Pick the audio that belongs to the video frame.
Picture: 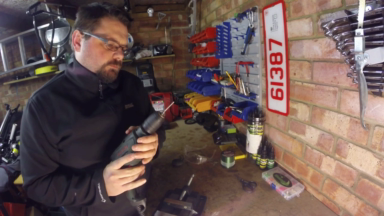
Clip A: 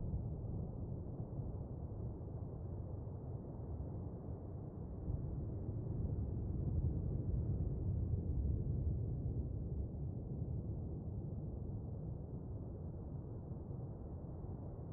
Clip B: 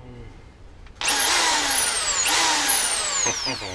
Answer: B